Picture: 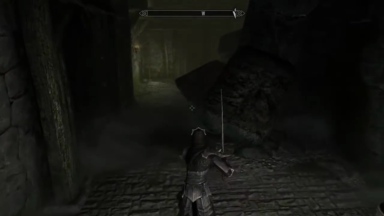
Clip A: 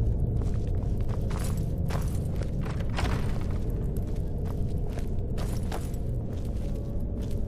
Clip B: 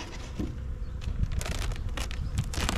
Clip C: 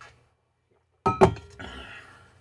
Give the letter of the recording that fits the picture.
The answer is A